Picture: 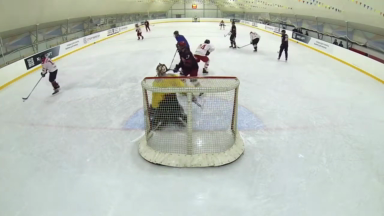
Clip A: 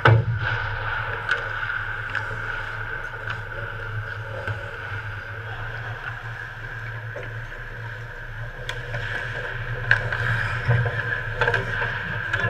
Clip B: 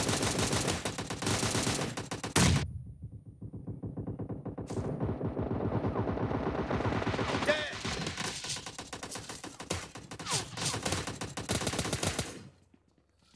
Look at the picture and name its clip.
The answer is A